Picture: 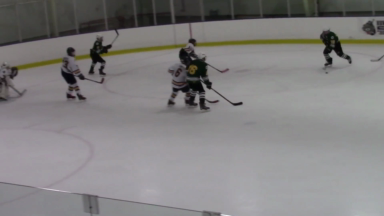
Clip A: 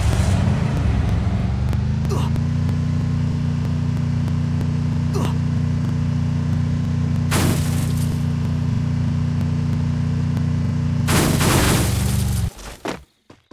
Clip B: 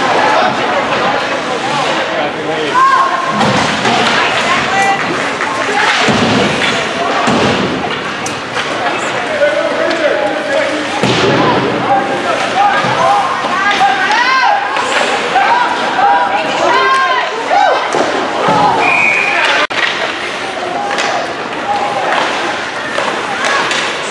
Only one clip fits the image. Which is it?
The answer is B